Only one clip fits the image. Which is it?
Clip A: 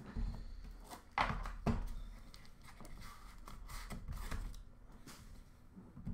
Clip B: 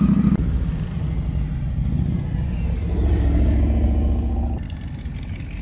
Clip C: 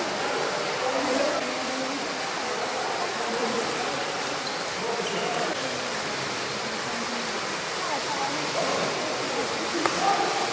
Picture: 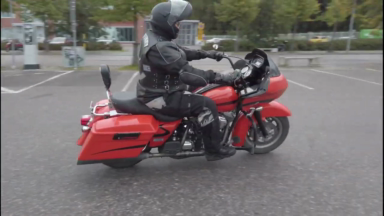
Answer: B